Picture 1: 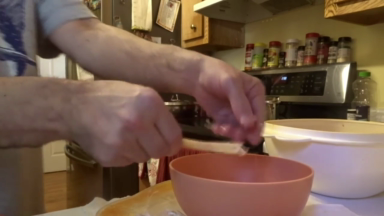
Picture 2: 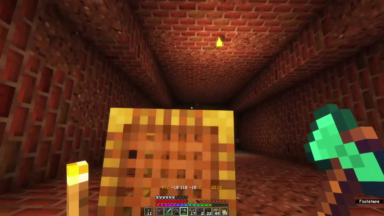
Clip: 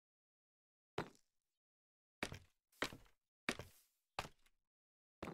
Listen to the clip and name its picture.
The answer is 2